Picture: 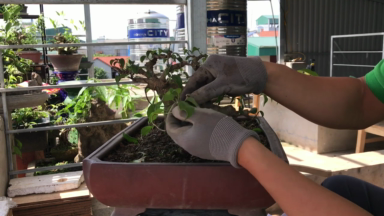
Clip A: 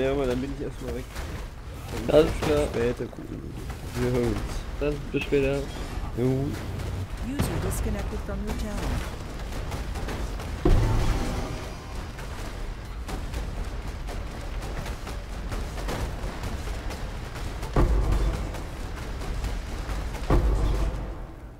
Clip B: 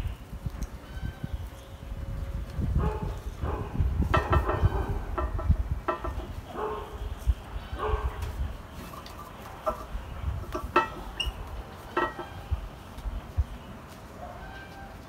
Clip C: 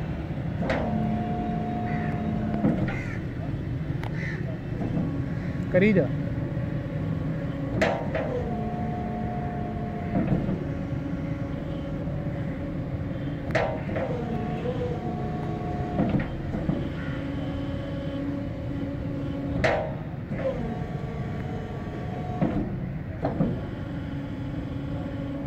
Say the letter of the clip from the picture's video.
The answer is B